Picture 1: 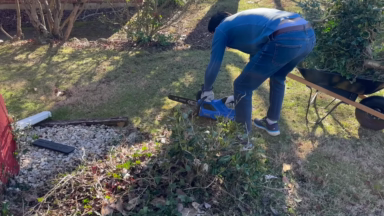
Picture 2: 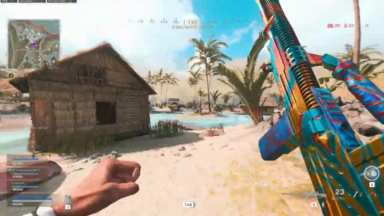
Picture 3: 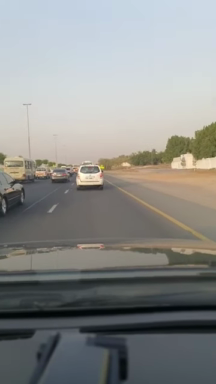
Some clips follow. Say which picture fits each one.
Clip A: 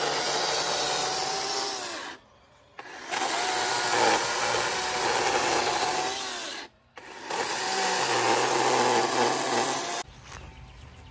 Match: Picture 1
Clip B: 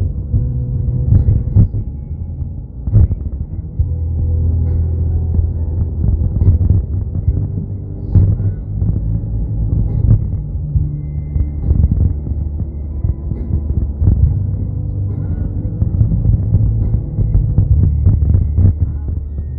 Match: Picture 3